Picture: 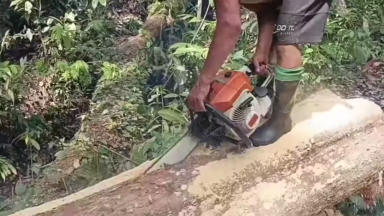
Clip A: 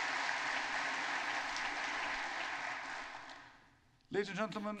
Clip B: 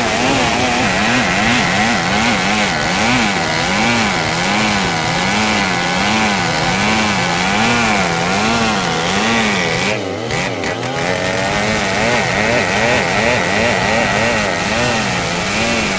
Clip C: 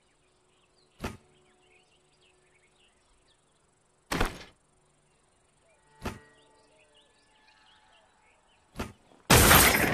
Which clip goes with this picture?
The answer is B